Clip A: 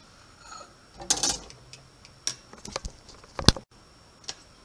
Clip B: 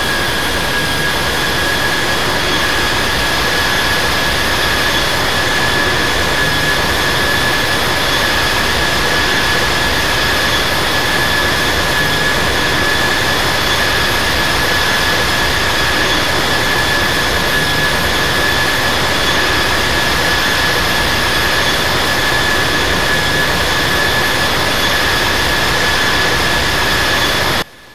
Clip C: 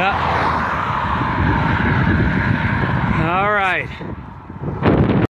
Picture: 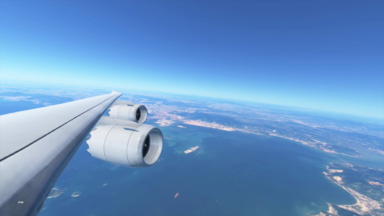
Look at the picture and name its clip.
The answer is B